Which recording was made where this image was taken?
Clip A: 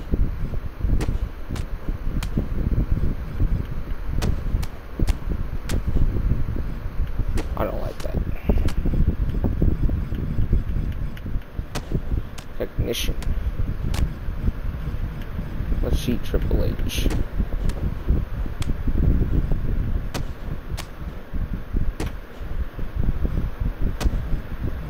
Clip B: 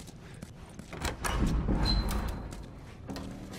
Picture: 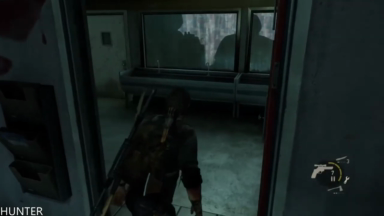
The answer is B